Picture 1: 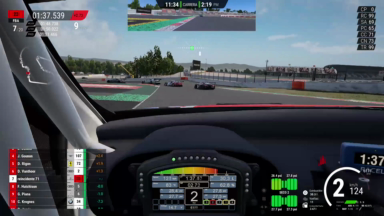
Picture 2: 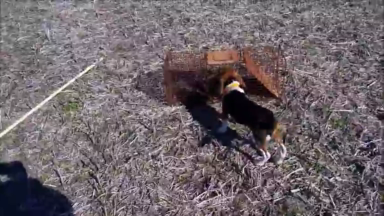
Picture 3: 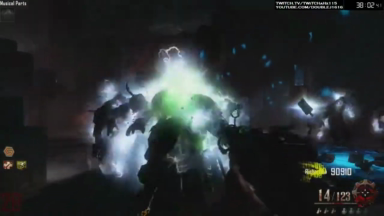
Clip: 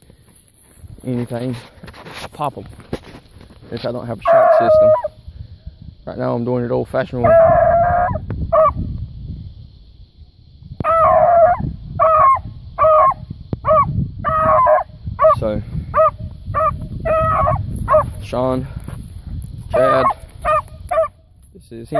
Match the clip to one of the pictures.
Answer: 2